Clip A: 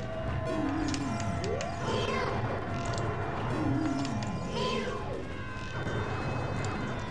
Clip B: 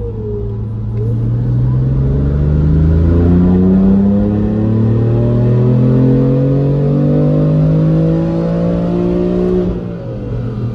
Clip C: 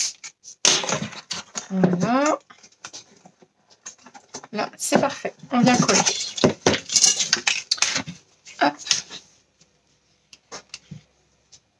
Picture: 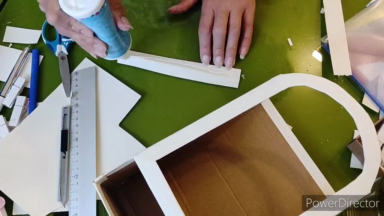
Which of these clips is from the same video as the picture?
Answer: C